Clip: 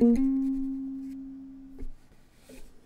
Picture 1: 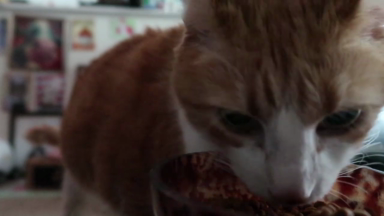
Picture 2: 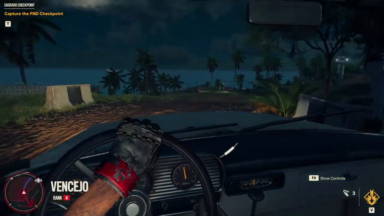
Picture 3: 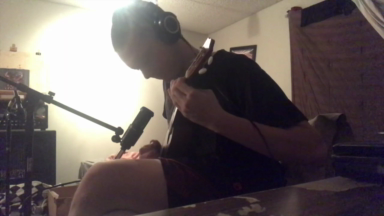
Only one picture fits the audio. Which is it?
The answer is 3